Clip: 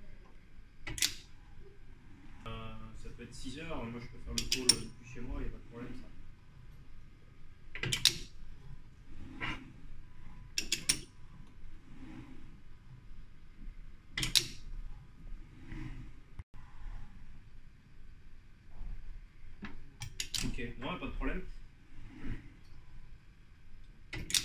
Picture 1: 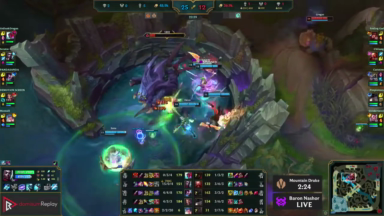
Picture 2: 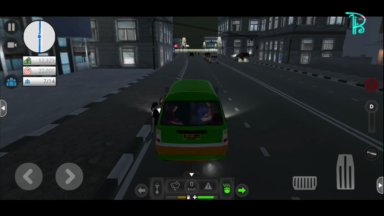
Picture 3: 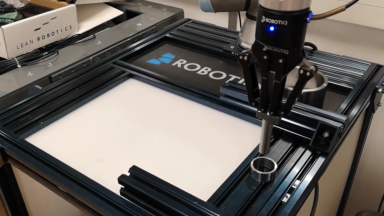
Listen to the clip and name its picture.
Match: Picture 3